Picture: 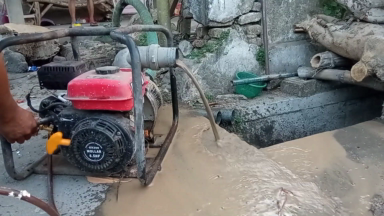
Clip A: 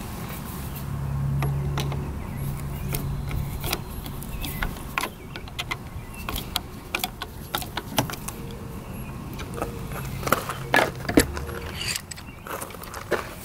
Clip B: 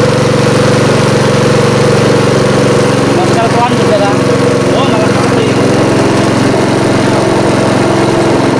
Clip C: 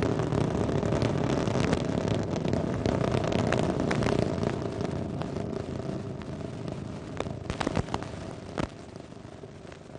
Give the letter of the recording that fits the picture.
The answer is B